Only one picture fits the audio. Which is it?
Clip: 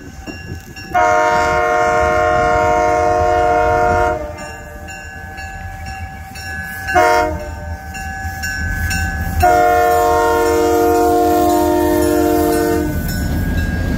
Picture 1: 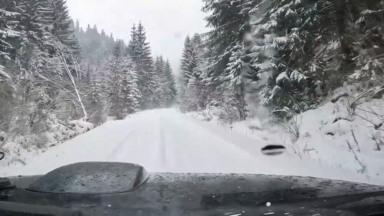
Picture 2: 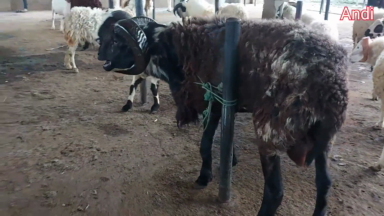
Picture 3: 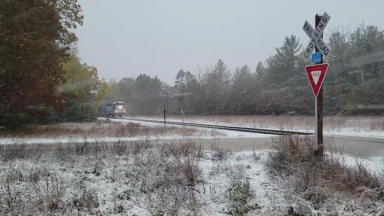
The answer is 3